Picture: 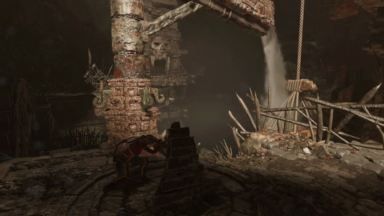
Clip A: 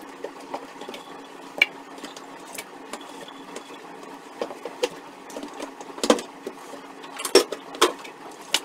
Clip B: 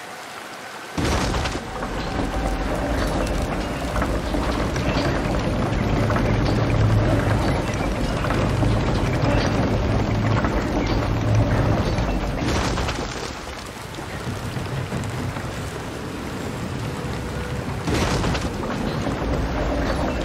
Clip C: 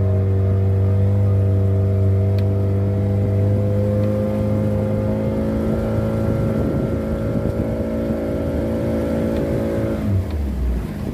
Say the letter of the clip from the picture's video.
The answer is B